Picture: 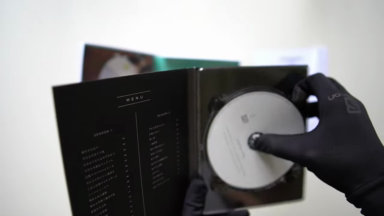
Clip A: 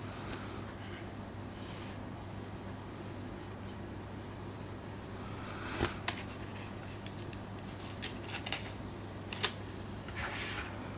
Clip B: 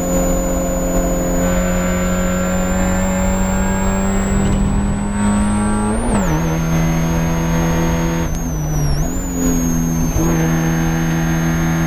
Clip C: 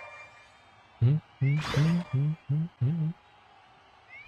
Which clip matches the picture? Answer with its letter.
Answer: A